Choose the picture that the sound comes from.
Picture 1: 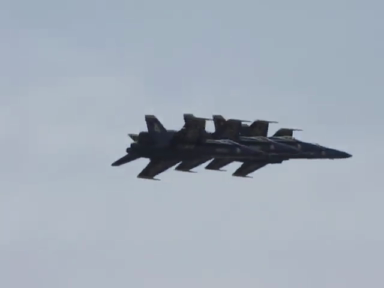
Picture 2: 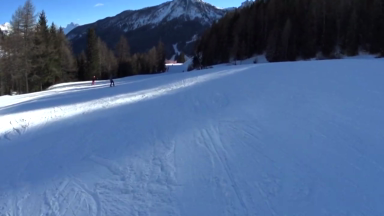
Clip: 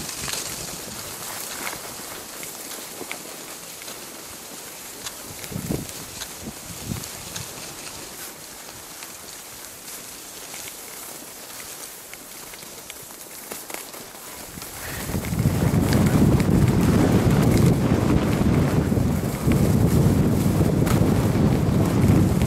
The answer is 2